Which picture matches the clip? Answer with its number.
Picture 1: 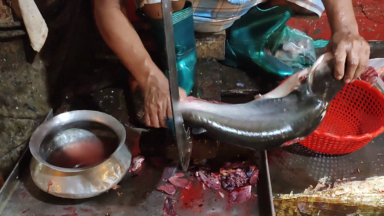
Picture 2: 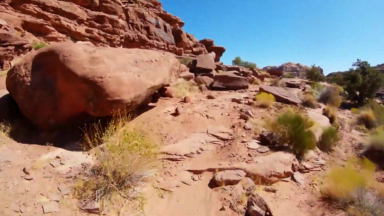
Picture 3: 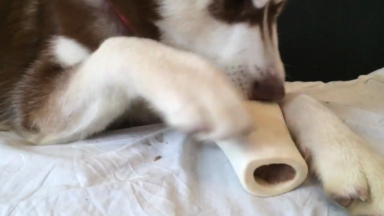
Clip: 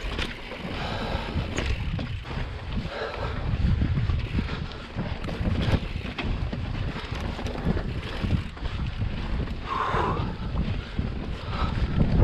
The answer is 2